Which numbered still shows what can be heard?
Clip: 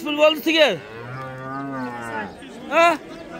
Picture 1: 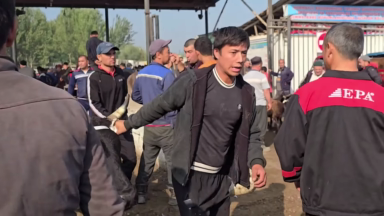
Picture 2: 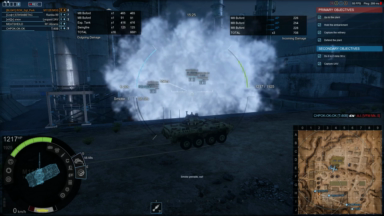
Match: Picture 1